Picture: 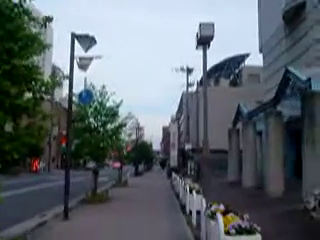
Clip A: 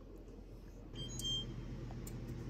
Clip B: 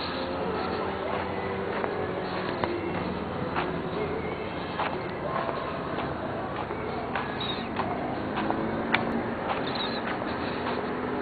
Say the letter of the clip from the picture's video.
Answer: B